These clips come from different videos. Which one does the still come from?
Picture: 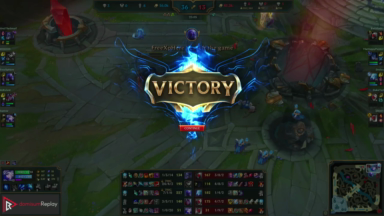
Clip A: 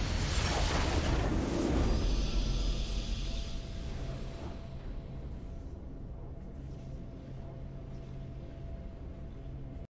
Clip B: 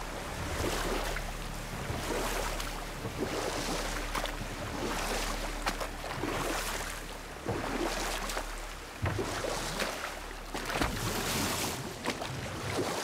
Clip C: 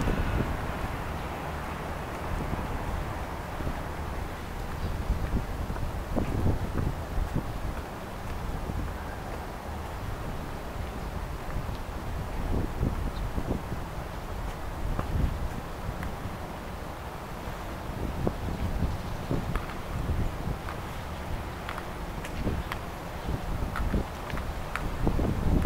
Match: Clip A